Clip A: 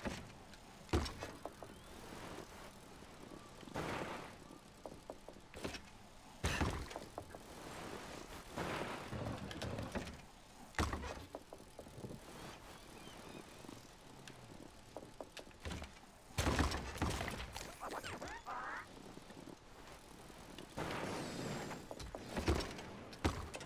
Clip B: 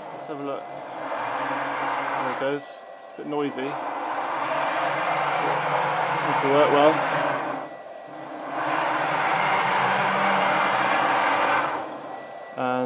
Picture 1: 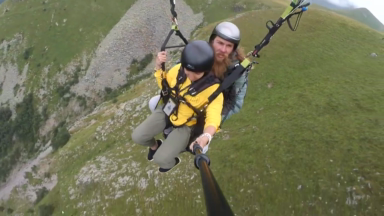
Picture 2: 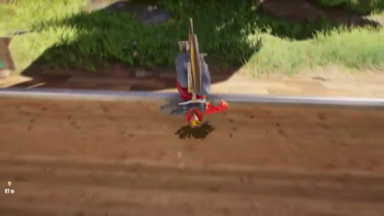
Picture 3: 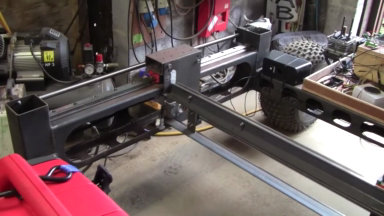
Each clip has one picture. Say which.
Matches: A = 2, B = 3